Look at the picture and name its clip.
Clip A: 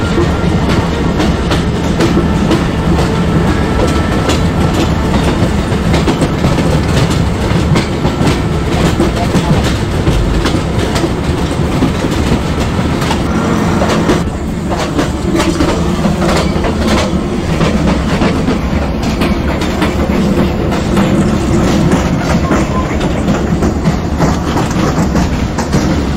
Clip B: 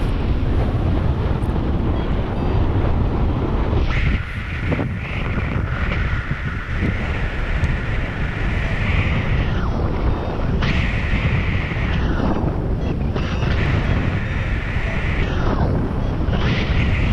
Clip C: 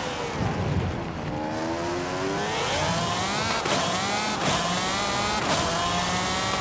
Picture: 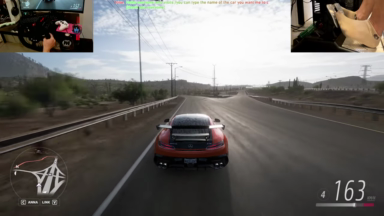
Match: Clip C